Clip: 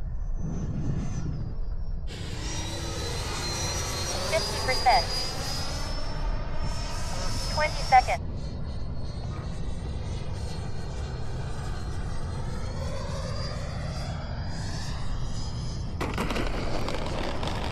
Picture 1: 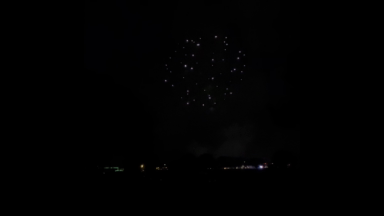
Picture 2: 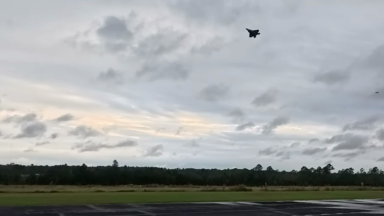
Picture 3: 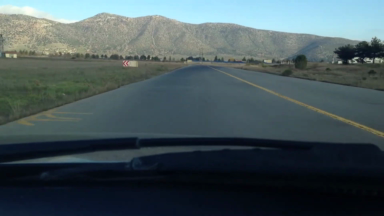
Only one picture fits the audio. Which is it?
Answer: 2